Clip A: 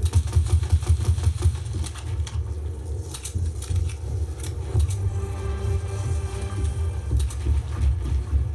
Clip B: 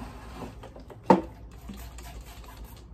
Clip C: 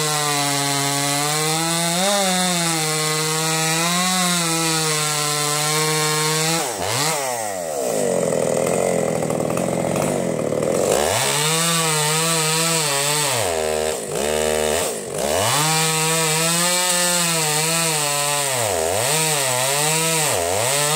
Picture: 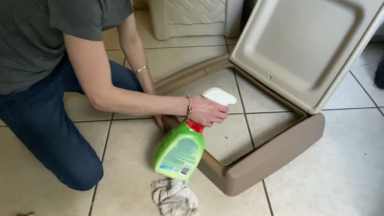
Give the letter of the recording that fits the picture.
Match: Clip B